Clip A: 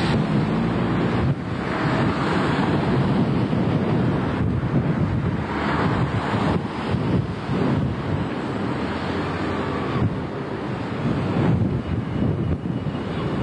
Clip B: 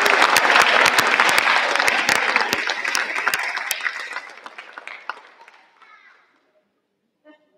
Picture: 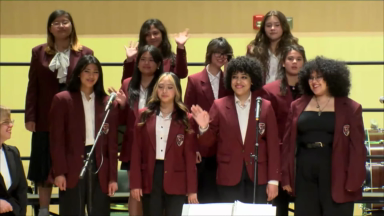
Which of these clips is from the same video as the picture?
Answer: B